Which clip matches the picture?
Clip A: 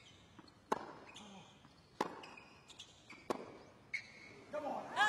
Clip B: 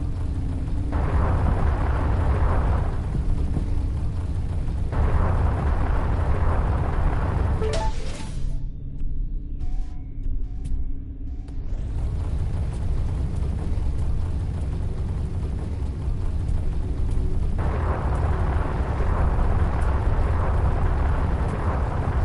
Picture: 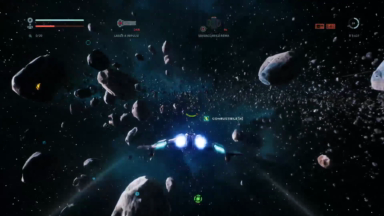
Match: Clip B